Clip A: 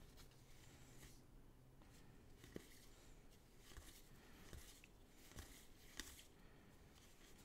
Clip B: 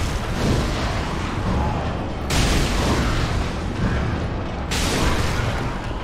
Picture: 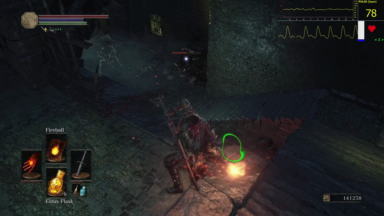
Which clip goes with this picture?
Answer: B